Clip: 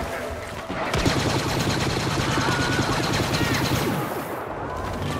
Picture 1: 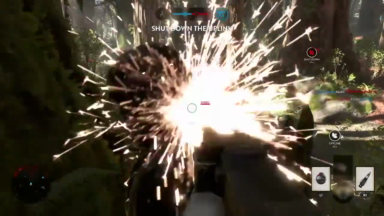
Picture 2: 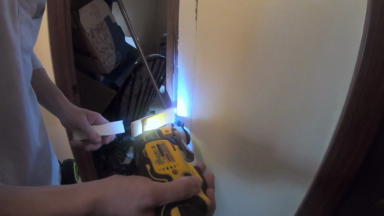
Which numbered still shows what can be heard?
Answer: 1